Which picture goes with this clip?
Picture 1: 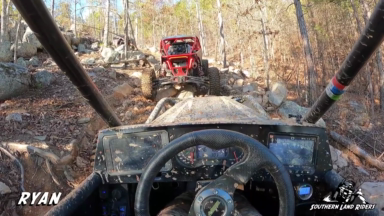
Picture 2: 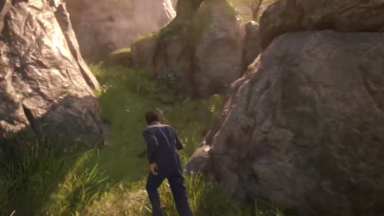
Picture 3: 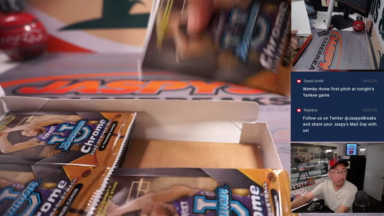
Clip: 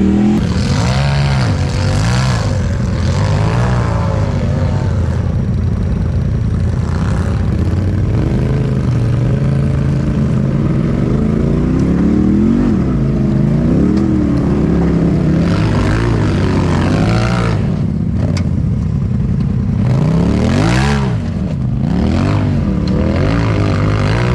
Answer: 1